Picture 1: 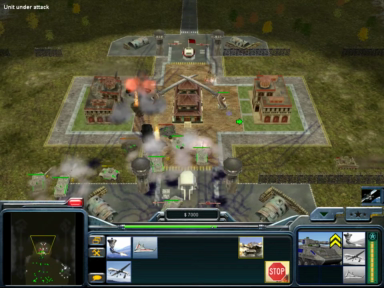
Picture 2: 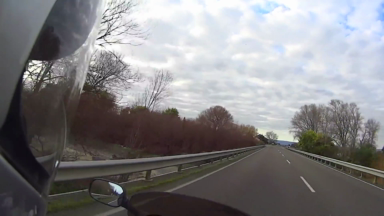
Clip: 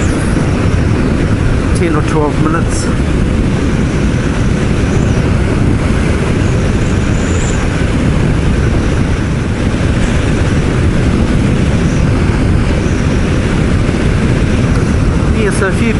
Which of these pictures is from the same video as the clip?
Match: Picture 2